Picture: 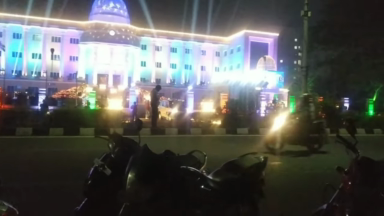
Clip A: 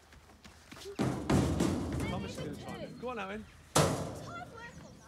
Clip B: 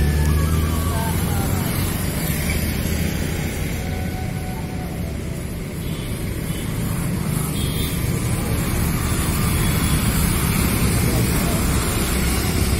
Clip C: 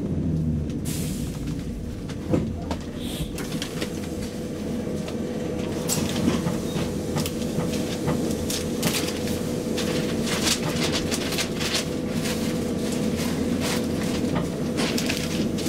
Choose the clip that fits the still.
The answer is B